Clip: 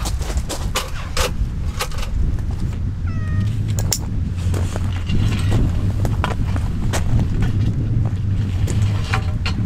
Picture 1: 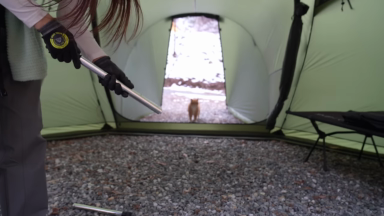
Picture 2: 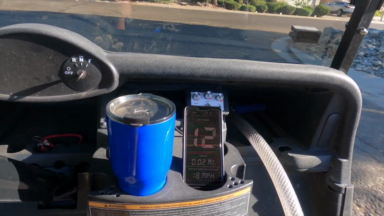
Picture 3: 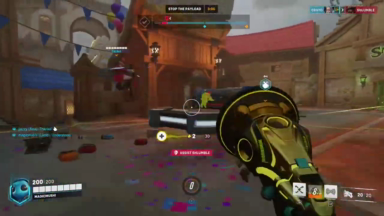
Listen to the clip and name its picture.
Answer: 1